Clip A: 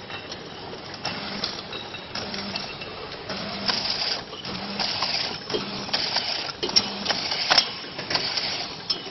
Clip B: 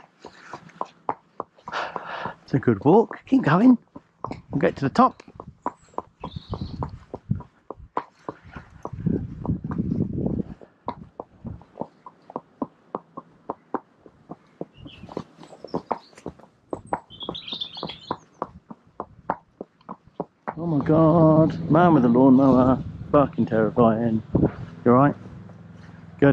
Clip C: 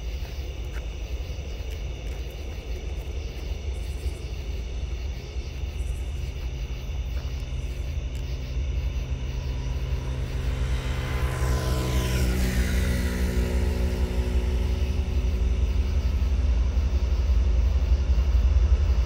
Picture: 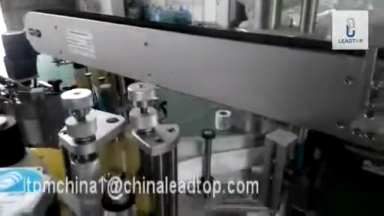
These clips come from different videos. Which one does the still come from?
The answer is A